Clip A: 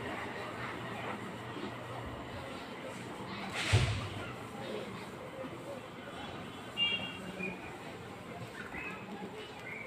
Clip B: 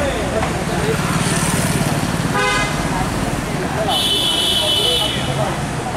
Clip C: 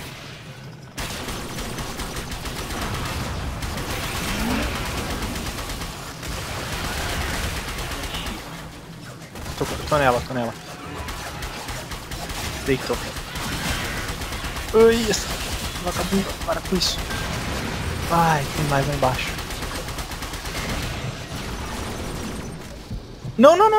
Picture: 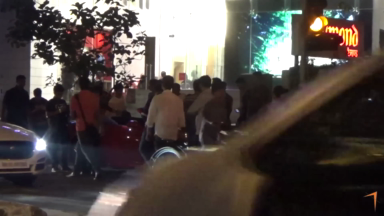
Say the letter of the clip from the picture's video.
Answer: B